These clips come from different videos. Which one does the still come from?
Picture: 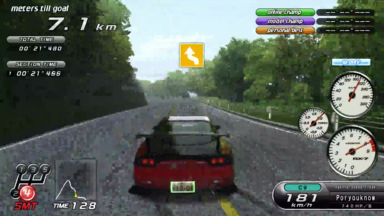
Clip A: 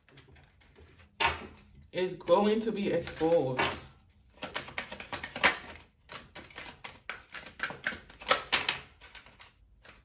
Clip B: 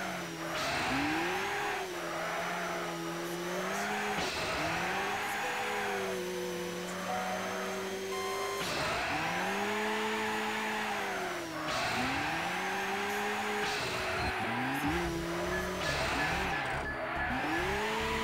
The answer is B